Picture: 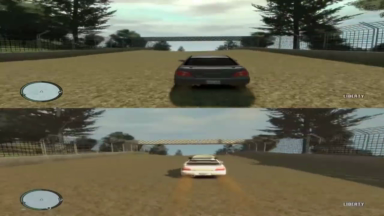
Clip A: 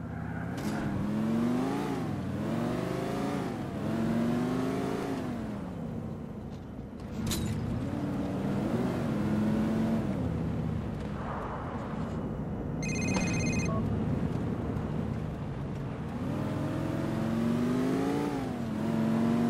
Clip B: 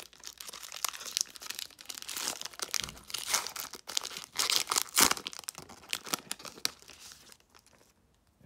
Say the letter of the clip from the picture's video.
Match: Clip A